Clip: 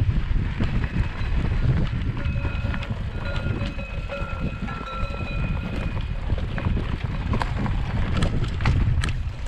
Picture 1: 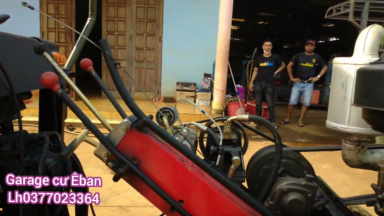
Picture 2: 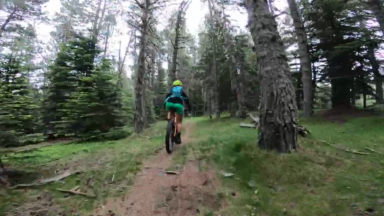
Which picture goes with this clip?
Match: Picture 2